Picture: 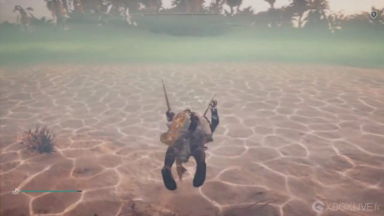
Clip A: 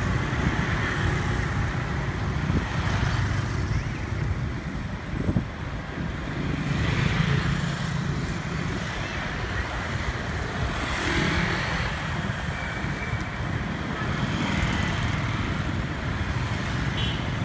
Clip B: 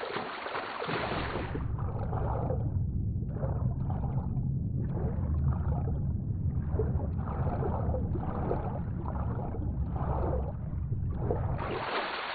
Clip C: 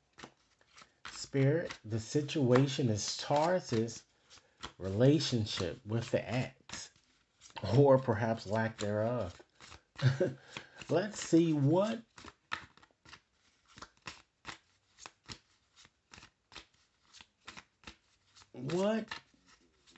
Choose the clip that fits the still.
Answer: B